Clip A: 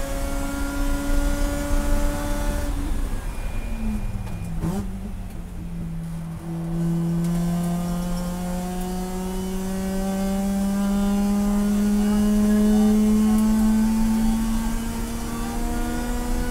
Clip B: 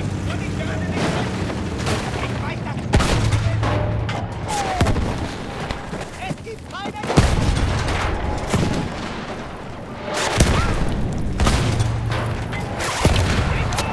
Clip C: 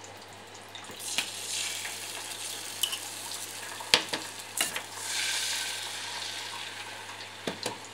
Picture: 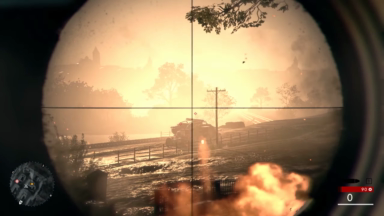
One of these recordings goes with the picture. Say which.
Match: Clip B